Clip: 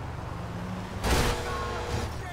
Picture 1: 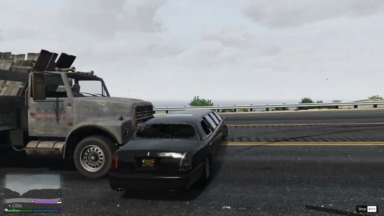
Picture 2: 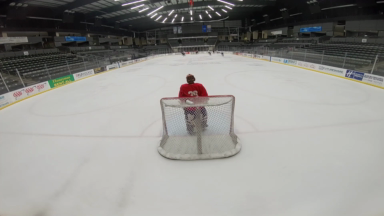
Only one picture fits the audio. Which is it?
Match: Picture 1